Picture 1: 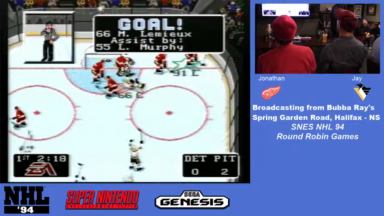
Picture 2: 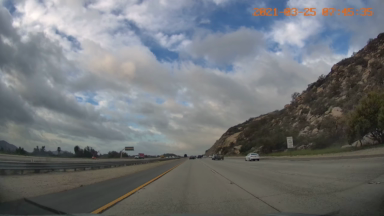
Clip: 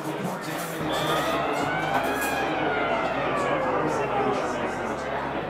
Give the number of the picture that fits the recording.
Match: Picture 1